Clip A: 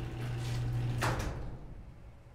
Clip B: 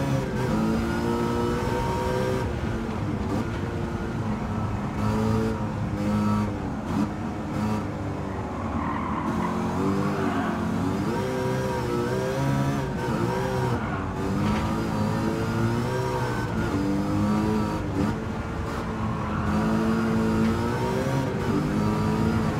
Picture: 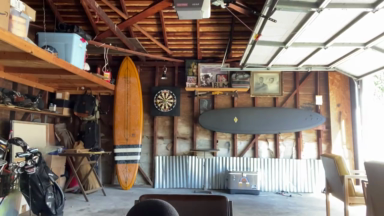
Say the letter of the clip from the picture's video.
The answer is A